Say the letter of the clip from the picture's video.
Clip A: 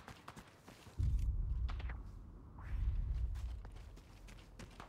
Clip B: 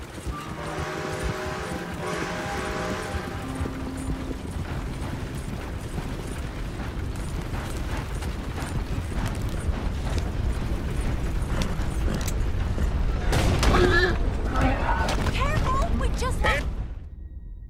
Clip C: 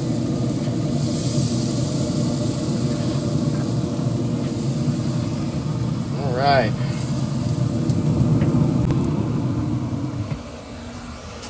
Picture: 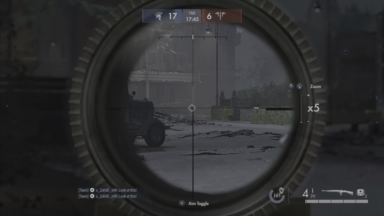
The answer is A